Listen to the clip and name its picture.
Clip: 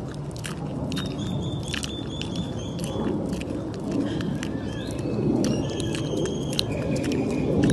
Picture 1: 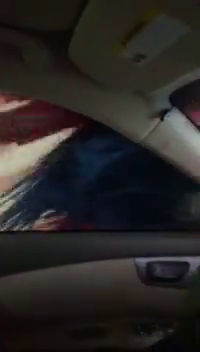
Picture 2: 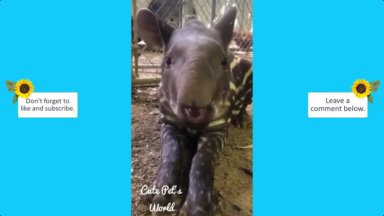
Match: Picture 2